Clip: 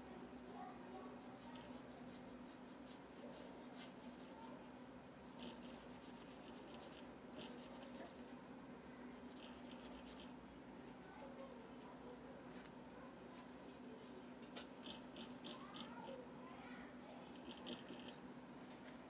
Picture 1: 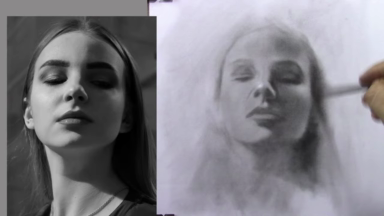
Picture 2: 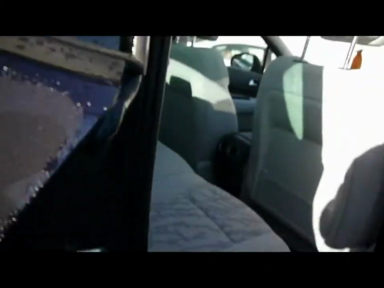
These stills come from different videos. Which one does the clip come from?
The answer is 1